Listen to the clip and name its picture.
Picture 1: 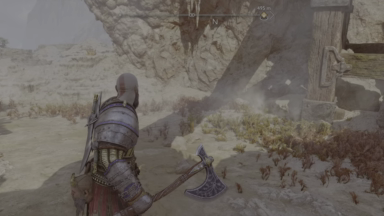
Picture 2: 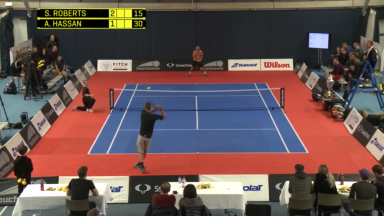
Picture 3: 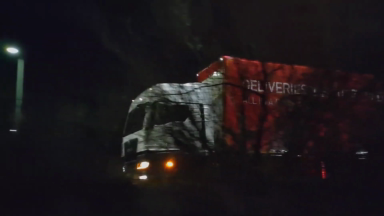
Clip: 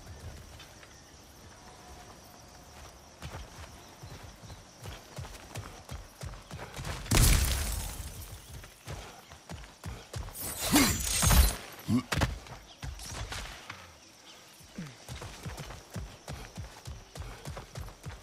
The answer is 1